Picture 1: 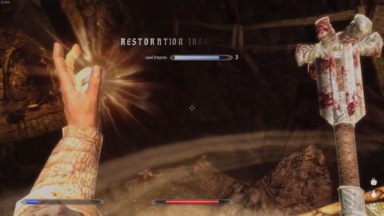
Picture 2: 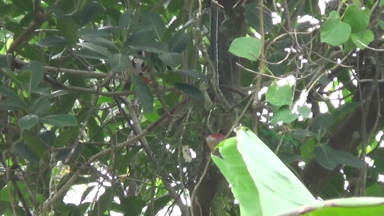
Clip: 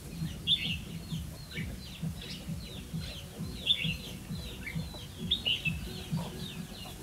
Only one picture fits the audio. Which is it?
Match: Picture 2